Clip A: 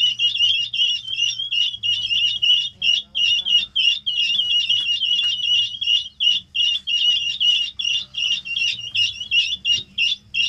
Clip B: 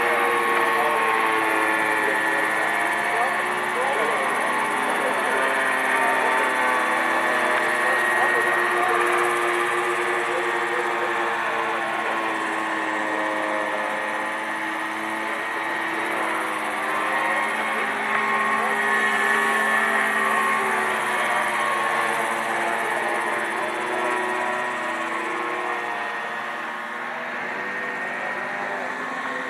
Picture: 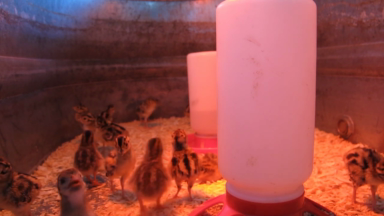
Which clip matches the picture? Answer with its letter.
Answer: A